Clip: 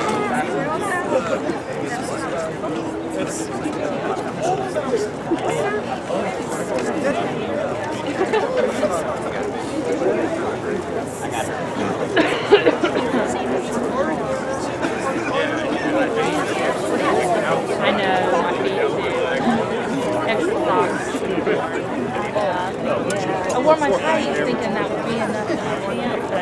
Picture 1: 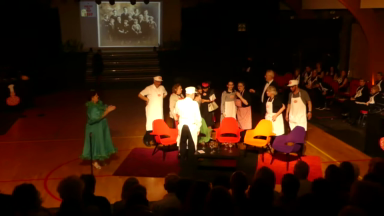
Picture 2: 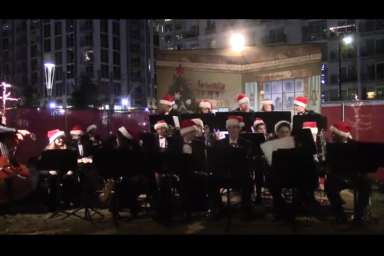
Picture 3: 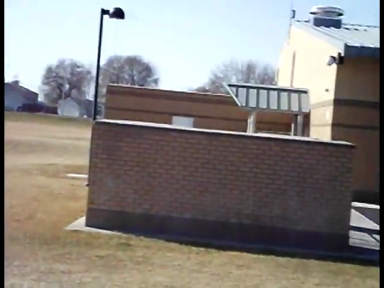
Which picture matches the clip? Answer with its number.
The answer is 2